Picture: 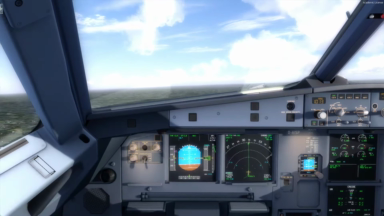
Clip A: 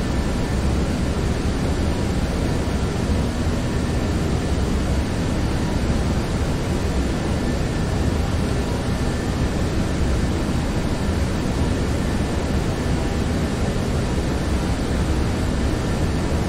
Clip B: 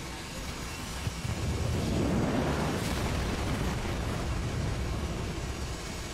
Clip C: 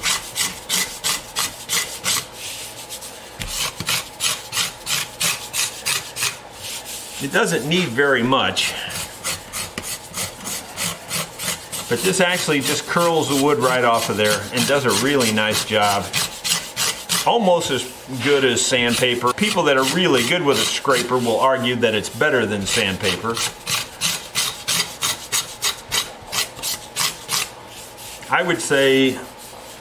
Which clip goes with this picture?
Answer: A